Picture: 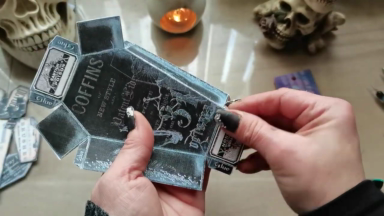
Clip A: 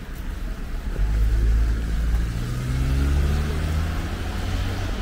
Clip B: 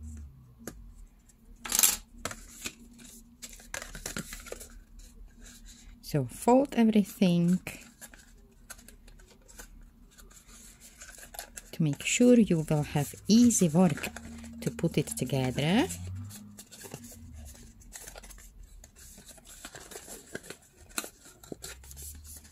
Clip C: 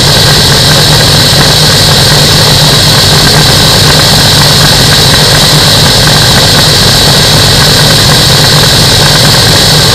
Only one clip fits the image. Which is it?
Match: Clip B